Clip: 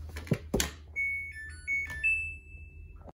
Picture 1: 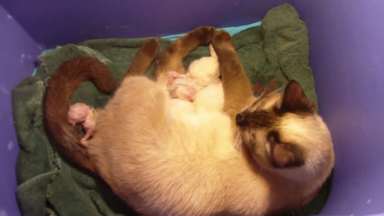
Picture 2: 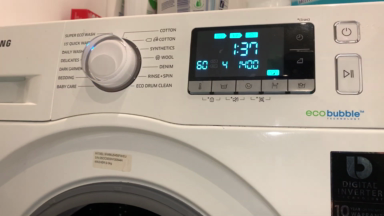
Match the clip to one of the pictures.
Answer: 2